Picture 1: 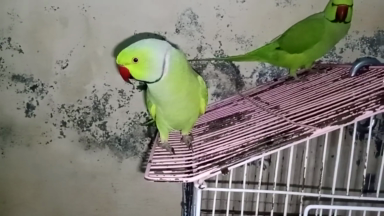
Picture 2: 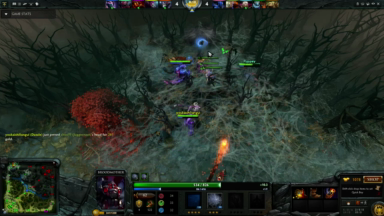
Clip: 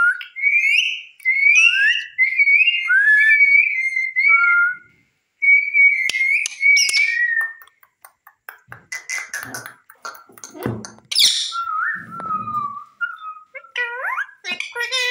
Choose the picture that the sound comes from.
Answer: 1